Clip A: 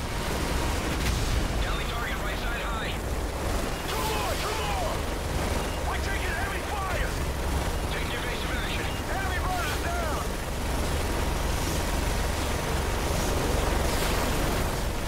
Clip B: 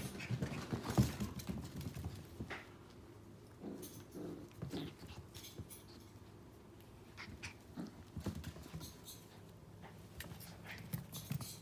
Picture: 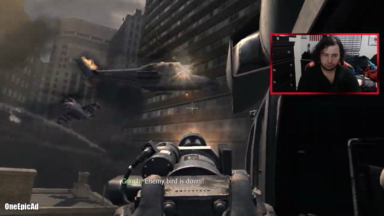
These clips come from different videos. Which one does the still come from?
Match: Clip A